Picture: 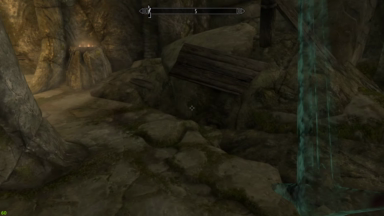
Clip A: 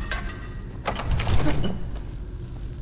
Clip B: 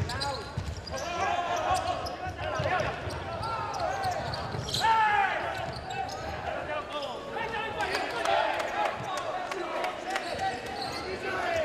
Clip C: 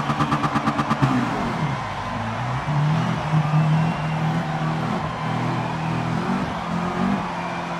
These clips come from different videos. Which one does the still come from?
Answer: A